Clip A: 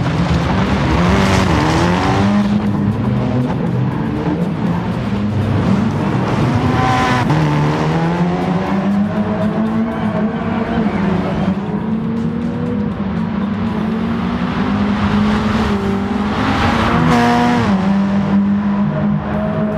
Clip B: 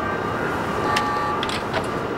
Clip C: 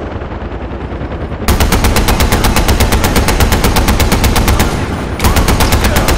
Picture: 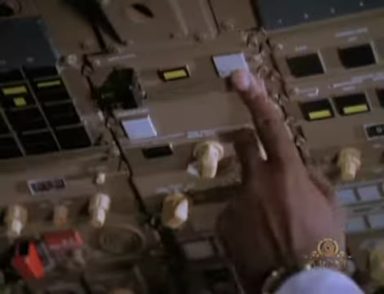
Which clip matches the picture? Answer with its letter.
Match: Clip B